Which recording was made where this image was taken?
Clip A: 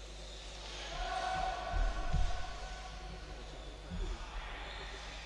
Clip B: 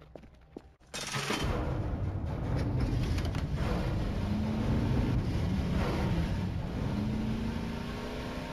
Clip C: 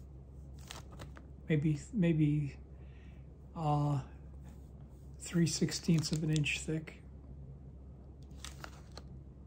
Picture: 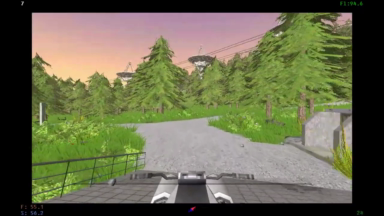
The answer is B